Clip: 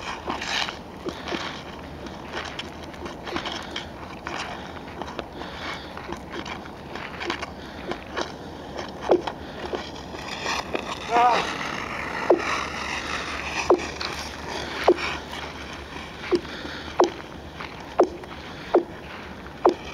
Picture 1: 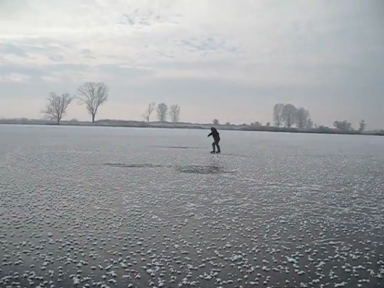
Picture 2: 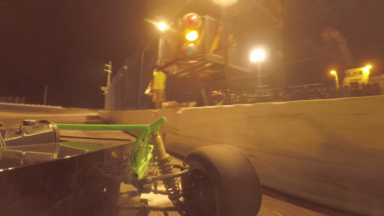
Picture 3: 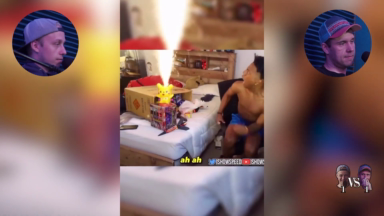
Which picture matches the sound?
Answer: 1